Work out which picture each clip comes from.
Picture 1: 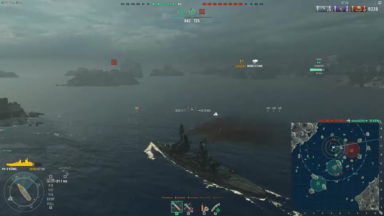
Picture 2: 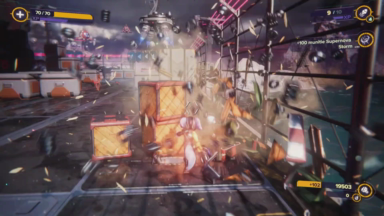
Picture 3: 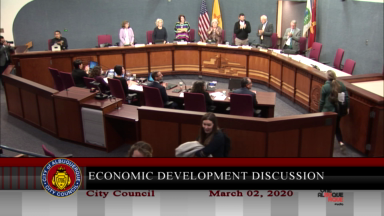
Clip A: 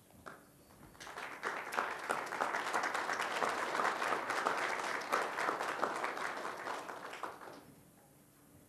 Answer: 3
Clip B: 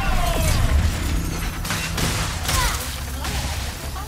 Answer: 2